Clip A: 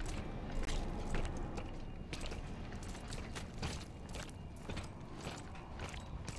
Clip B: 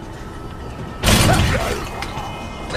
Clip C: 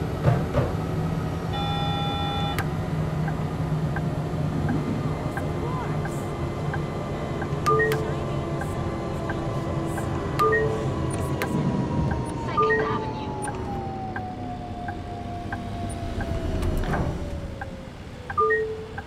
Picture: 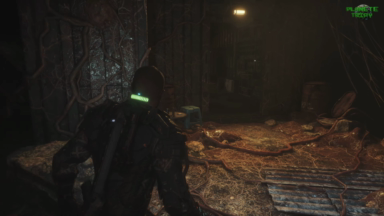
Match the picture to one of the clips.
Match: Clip A